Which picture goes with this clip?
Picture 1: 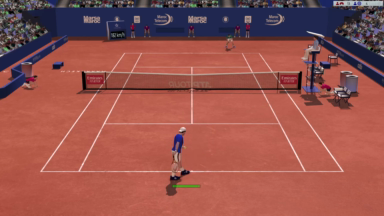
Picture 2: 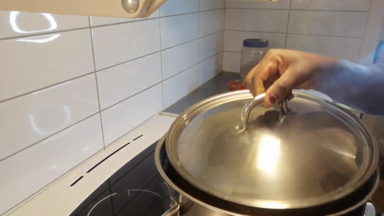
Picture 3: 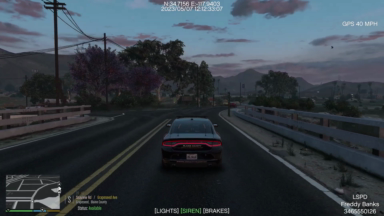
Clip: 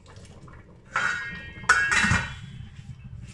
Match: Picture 2